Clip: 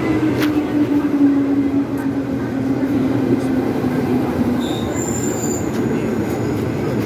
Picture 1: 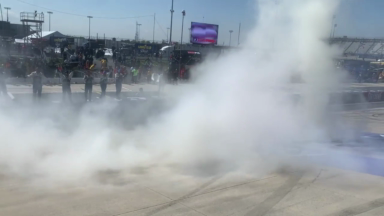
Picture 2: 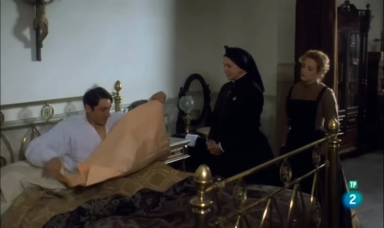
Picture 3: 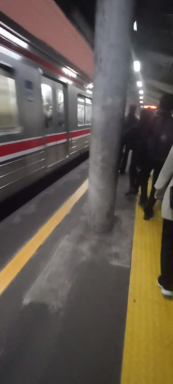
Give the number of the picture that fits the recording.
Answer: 3